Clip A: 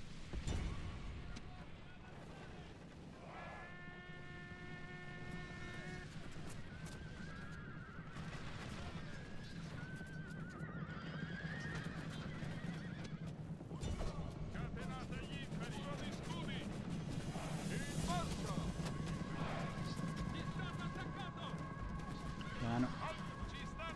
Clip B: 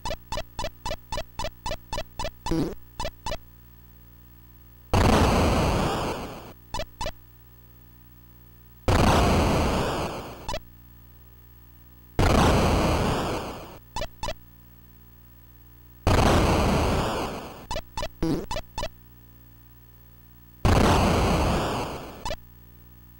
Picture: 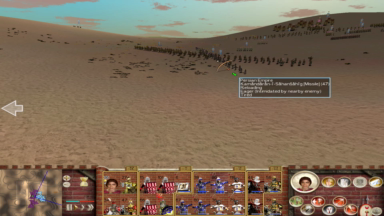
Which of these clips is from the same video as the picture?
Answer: A